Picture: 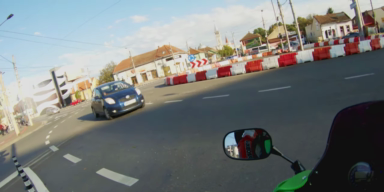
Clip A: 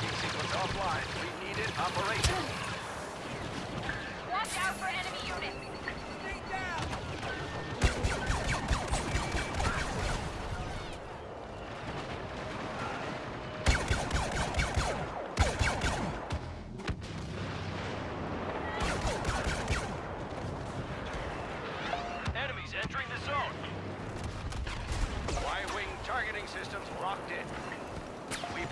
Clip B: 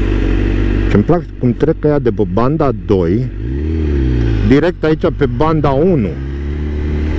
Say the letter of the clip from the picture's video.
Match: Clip B